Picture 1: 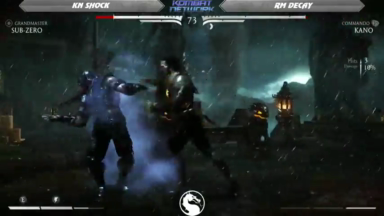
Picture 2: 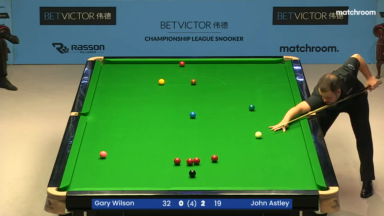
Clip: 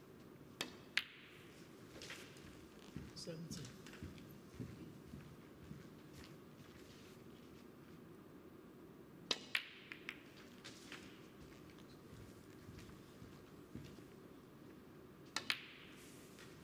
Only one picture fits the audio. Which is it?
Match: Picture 2